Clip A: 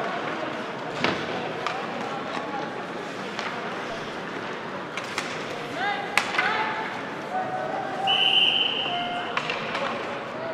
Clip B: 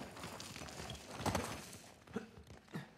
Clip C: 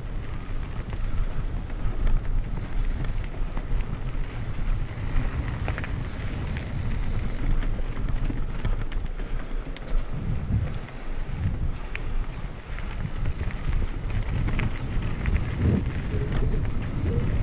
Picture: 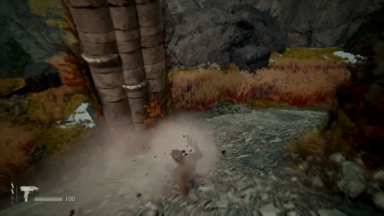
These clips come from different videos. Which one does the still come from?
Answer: B